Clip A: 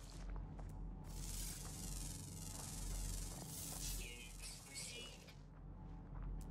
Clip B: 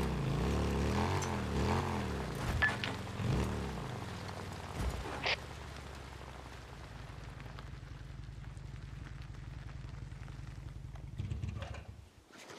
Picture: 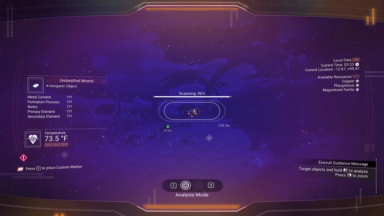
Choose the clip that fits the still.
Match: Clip A